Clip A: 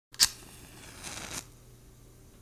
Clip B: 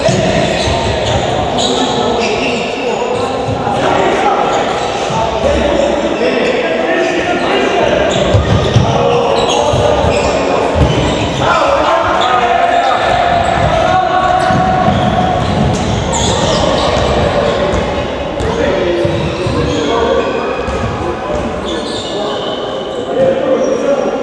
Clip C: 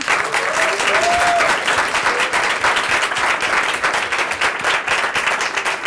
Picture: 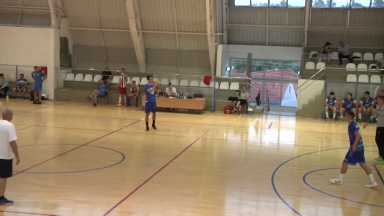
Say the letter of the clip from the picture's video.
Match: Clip B